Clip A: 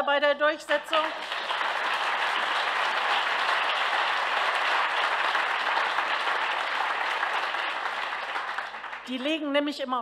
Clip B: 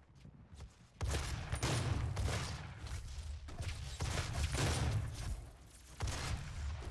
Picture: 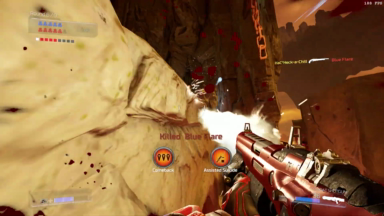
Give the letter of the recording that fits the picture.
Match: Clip B